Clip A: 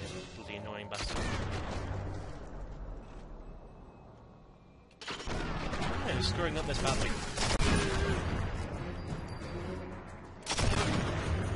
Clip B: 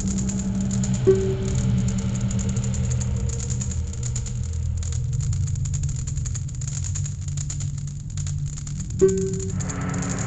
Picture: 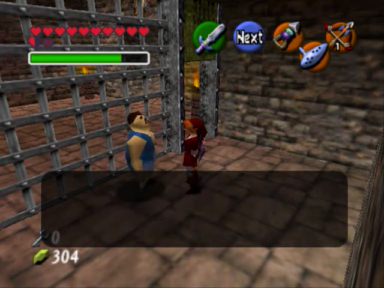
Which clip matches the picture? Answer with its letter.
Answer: B